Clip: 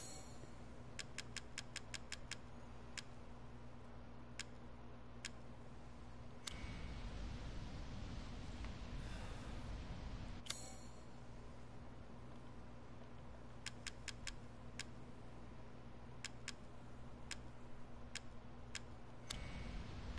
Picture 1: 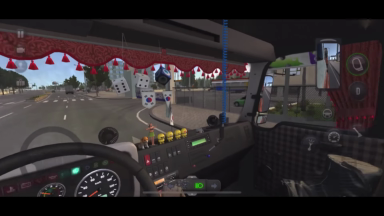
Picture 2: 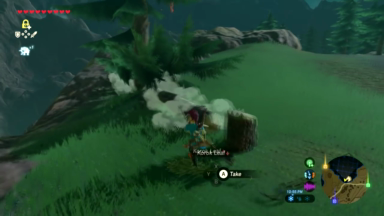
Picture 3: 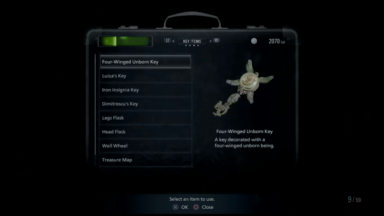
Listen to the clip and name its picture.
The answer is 3